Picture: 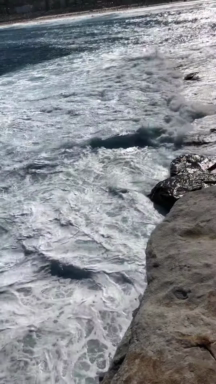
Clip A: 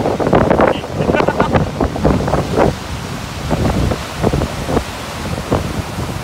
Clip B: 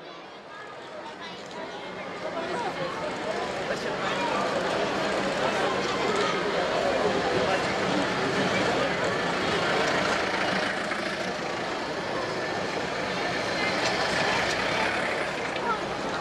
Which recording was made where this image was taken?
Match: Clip A